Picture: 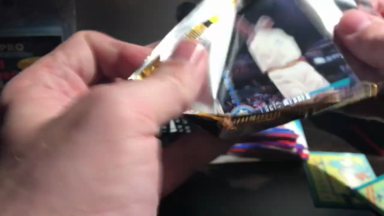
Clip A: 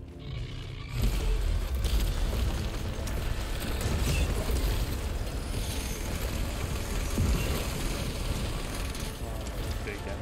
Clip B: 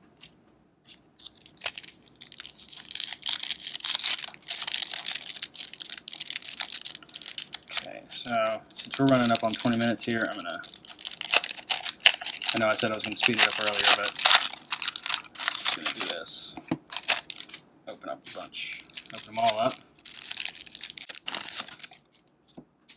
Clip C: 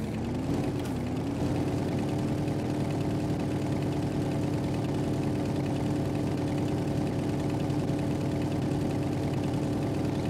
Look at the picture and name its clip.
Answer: B